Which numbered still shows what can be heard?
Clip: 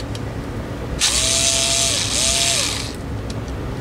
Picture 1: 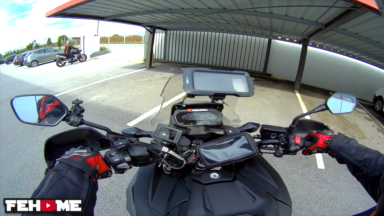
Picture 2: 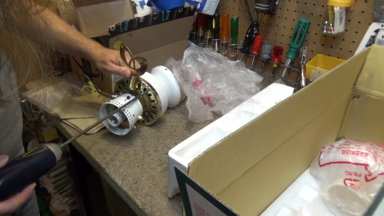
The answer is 2